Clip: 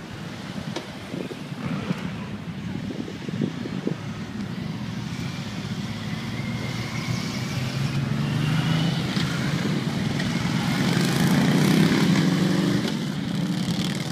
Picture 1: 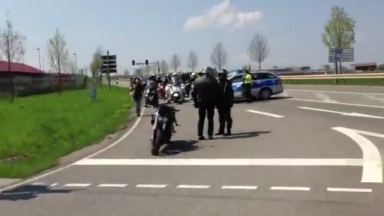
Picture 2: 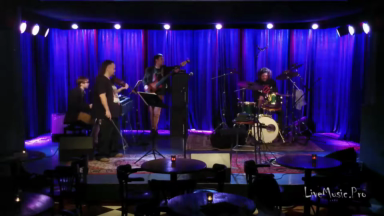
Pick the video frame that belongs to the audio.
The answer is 1